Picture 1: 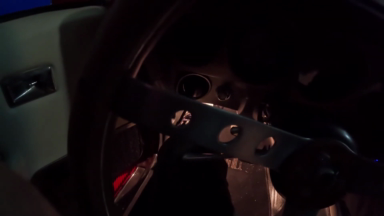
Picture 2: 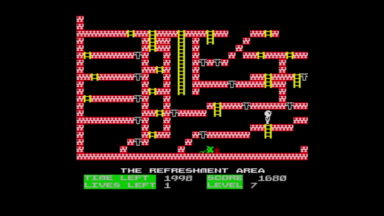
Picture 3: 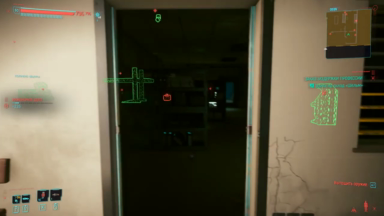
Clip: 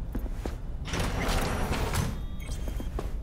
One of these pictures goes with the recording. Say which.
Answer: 3